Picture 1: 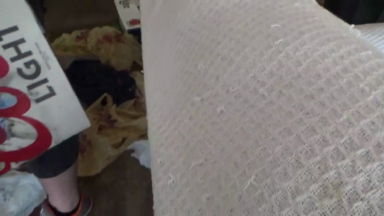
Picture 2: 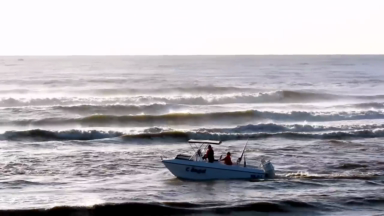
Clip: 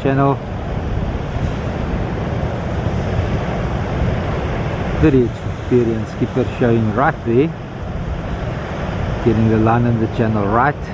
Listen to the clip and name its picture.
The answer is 2